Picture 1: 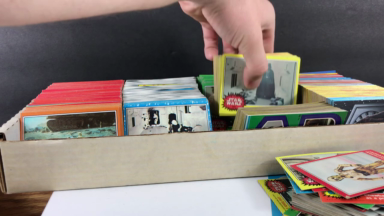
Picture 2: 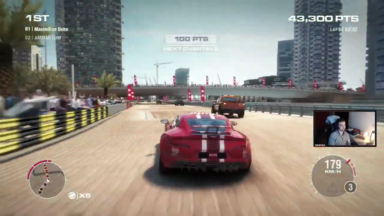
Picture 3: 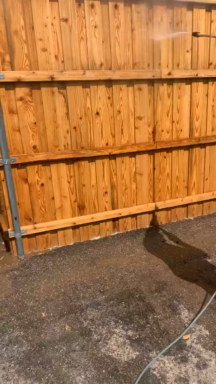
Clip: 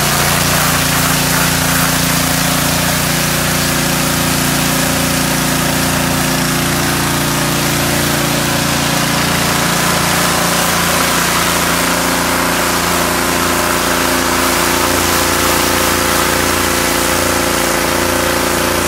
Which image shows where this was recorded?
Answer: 3